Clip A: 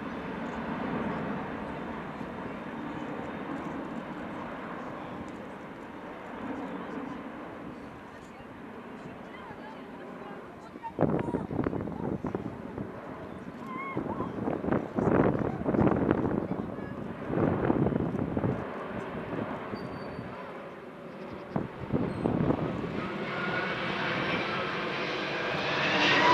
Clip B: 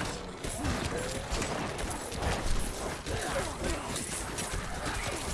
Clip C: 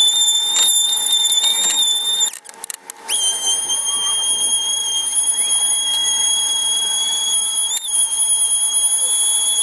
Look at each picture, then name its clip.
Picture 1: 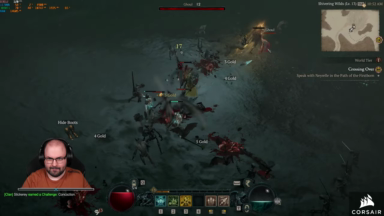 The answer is B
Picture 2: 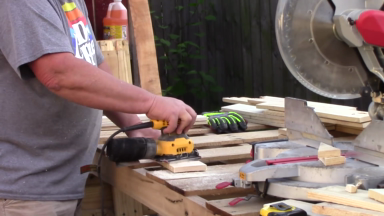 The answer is C